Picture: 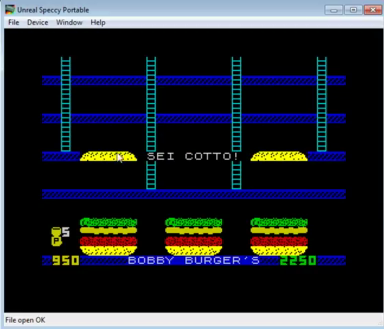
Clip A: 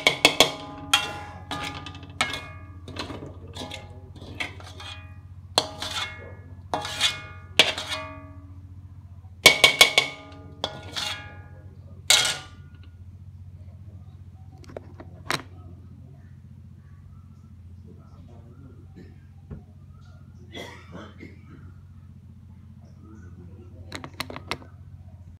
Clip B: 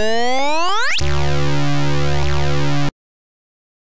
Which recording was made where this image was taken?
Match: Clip B